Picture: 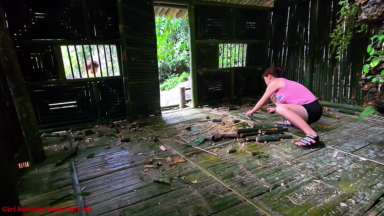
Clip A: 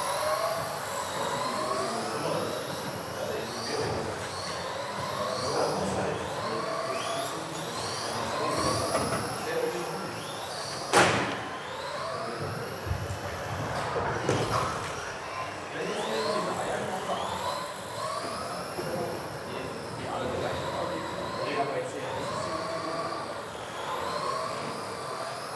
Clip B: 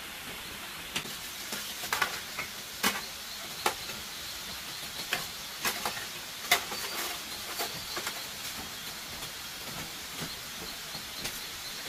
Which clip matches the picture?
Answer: B